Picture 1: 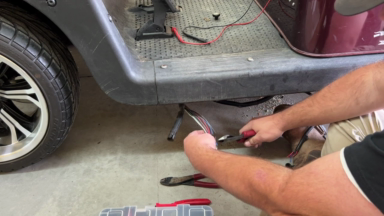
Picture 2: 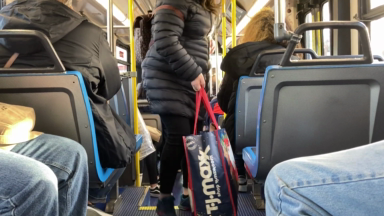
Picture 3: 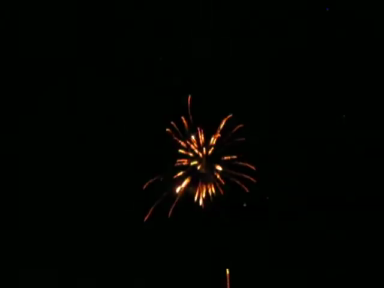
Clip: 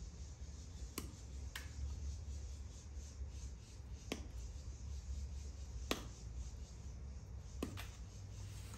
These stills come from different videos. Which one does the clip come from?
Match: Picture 1